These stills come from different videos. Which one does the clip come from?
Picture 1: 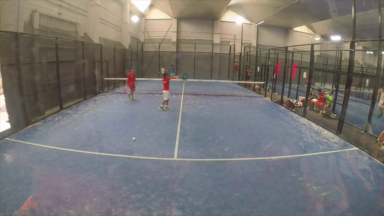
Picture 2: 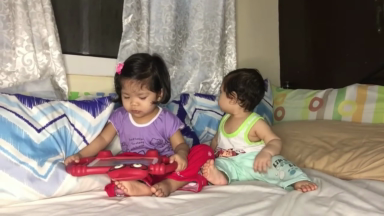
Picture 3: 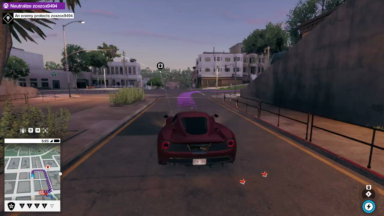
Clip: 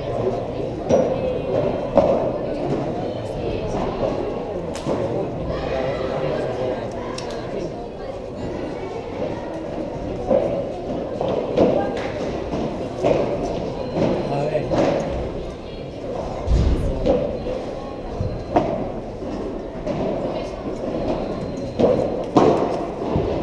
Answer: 1